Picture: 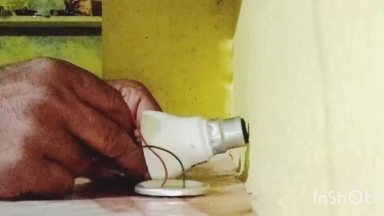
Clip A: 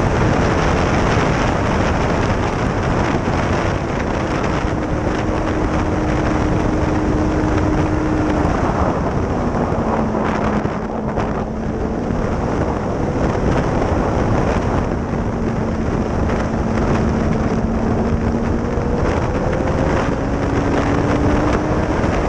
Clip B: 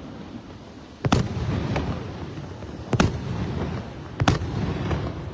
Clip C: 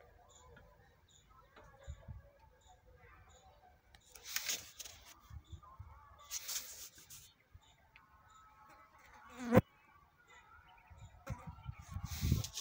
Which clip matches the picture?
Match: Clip C